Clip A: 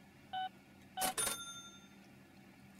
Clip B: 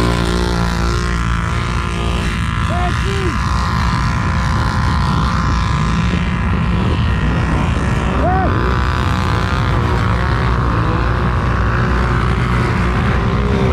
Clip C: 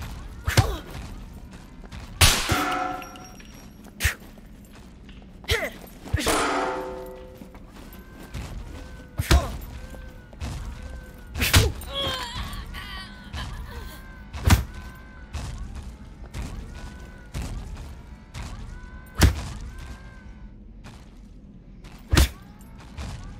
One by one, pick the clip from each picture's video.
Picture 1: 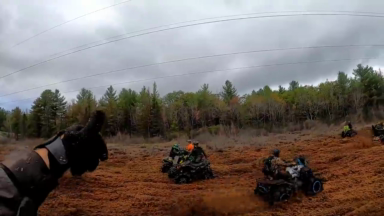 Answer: B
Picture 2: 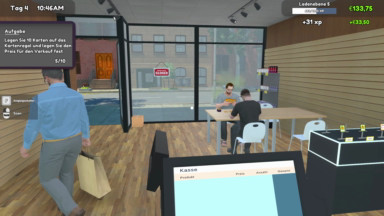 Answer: A